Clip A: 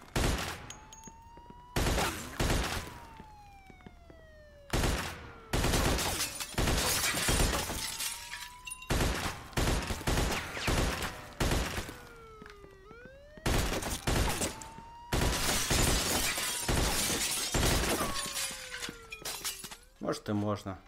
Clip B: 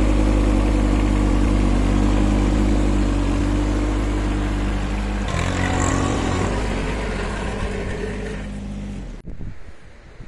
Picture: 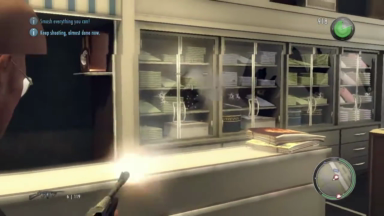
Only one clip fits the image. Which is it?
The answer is A